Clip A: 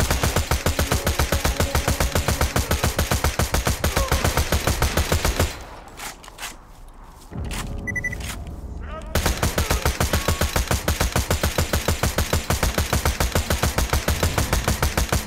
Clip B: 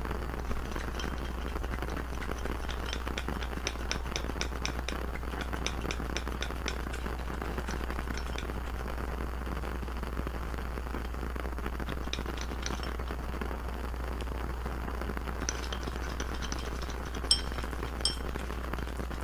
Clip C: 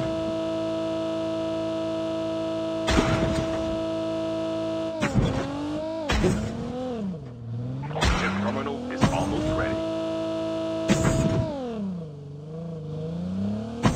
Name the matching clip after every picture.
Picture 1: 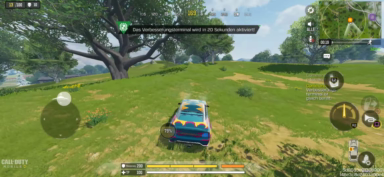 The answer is C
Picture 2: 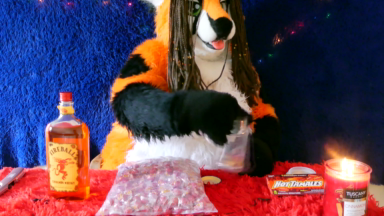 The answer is B